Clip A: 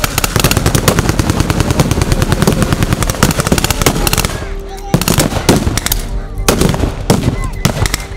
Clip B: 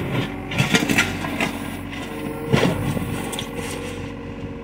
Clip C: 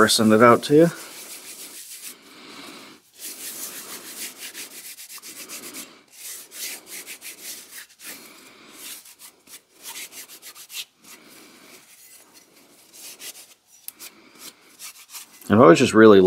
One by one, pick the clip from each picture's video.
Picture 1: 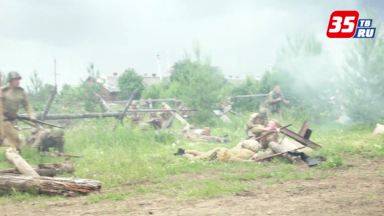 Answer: A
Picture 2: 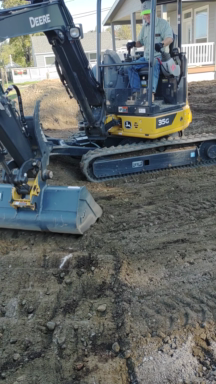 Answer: B